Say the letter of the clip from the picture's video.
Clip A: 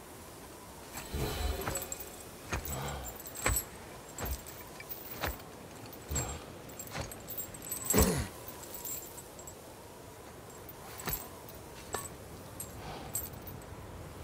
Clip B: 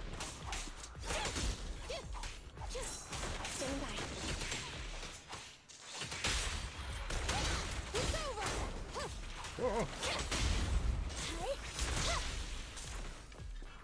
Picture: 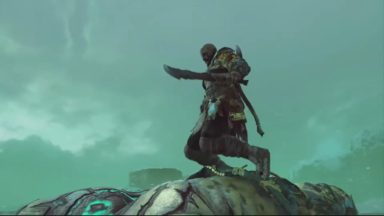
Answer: A